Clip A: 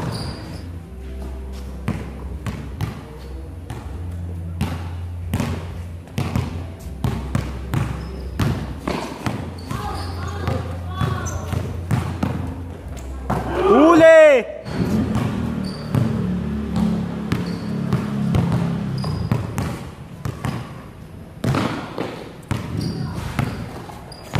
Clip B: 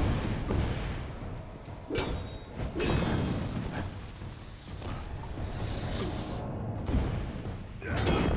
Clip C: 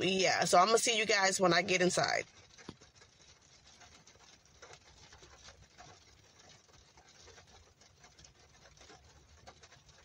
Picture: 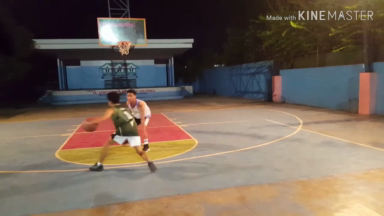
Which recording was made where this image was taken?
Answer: A